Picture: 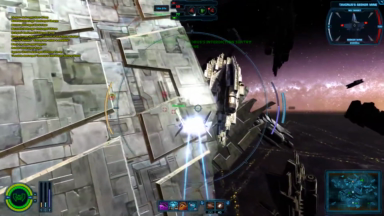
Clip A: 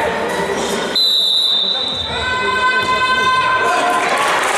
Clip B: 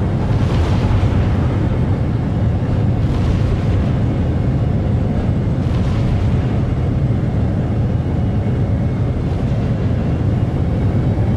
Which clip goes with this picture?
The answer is B